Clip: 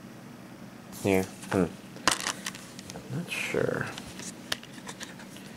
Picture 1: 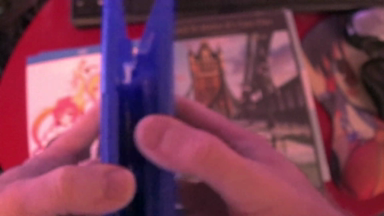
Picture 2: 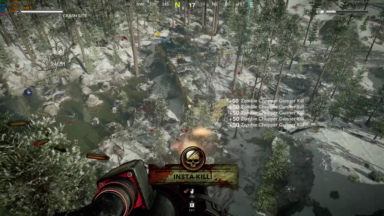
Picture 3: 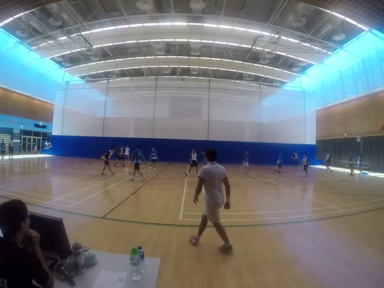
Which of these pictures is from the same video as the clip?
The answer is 1